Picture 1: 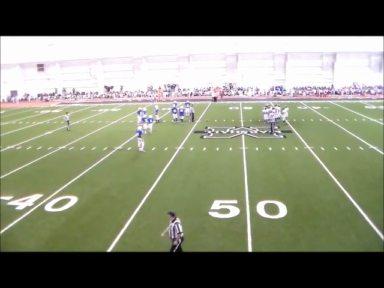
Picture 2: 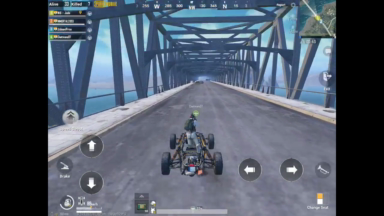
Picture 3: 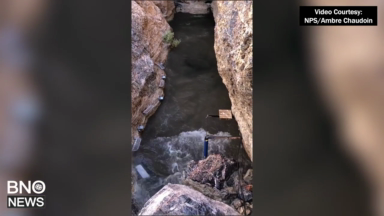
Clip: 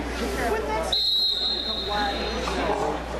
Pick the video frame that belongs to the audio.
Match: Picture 1